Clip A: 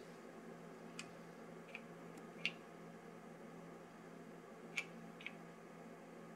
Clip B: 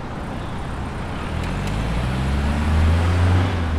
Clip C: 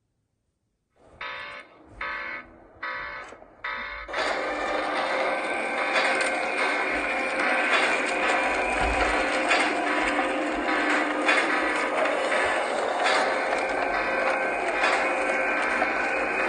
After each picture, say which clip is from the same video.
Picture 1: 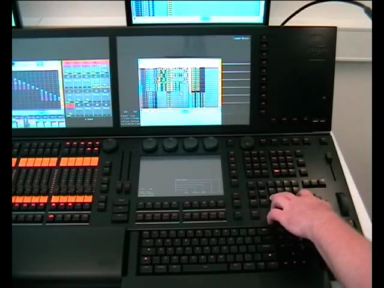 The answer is A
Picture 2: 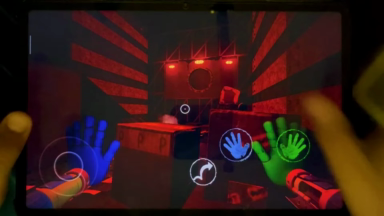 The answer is C